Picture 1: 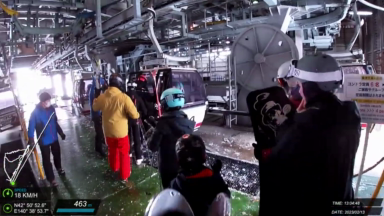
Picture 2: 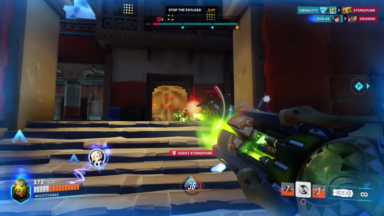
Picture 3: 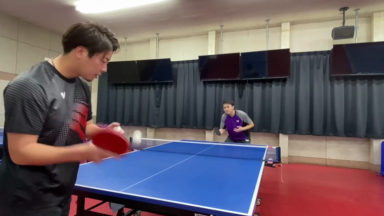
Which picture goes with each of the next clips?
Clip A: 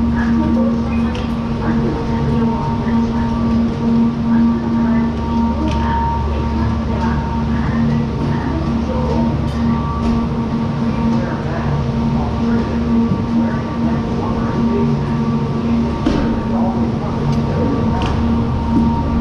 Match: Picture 1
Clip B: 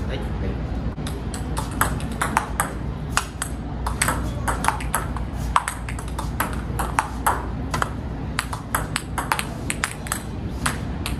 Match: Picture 3